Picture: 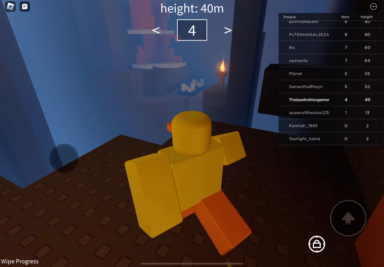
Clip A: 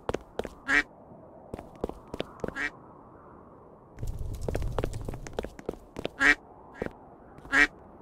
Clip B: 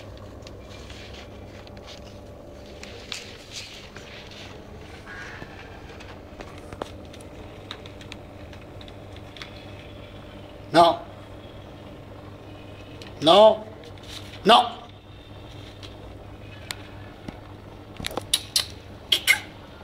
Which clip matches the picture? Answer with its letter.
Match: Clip A